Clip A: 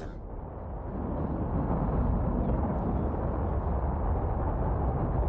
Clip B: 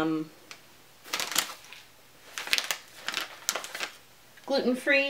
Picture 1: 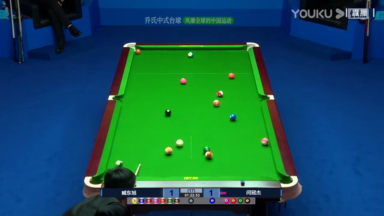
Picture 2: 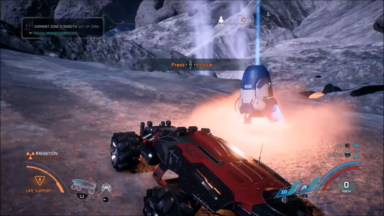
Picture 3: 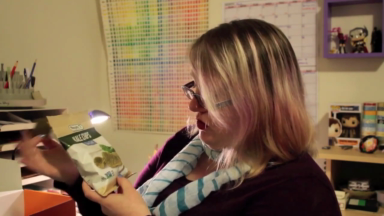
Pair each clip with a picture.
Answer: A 2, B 3